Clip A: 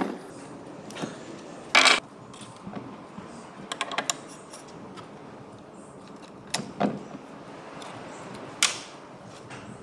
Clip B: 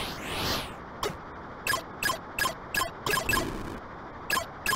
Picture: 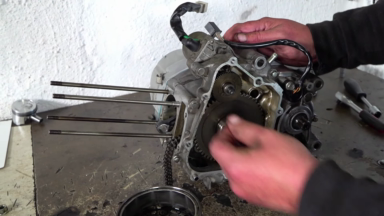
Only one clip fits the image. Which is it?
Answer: A